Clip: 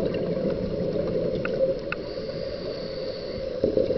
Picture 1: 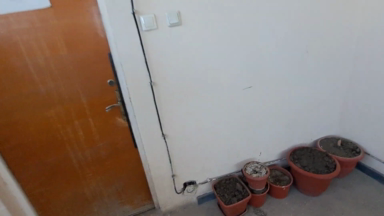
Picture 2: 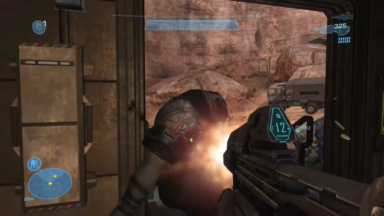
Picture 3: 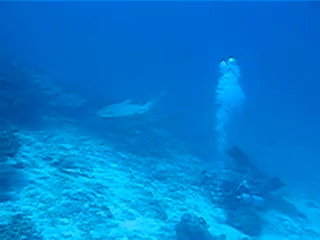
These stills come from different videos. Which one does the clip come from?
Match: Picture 3